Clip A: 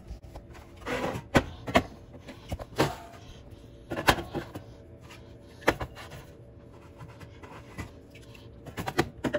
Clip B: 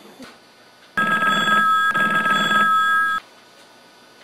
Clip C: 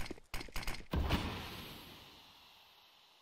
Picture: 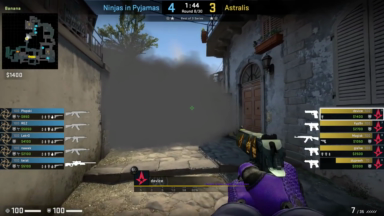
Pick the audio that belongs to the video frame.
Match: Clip C